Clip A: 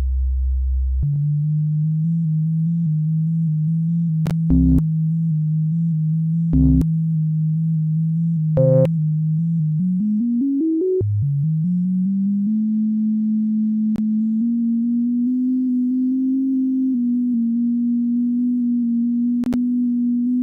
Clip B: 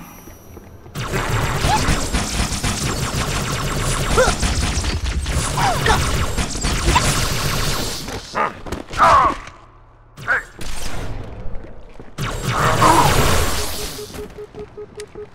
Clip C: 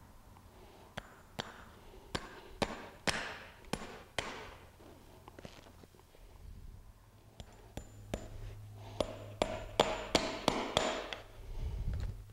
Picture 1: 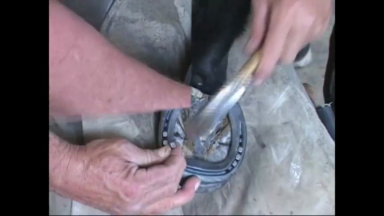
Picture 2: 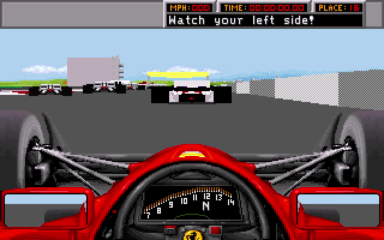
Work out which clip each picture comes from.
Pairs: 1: C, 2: A